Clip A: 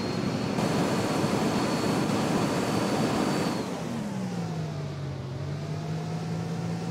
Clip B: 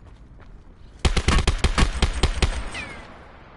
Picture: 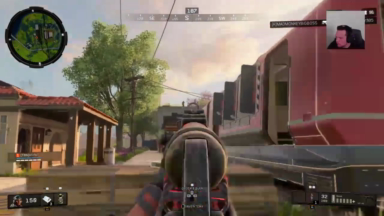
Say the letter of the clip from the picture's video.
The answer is B